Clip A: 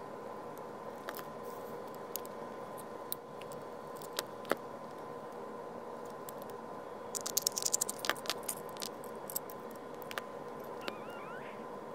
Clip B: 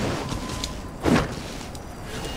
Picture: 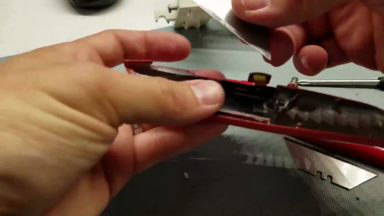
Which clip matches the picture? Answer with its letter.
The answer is A